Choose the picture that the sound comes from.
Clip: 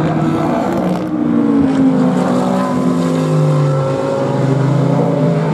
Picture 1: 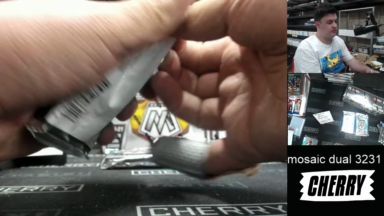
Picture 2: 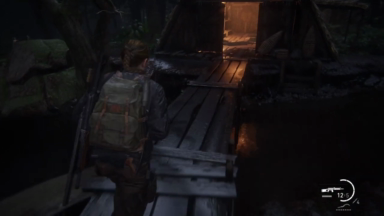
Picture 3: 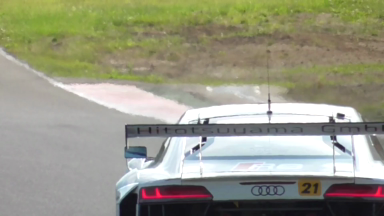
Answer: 3